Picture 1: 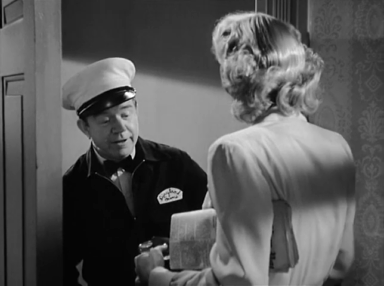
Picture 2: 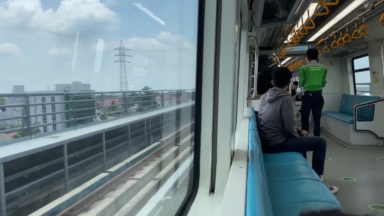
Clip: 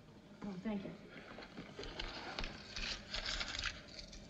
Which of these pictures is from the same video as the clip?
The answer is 1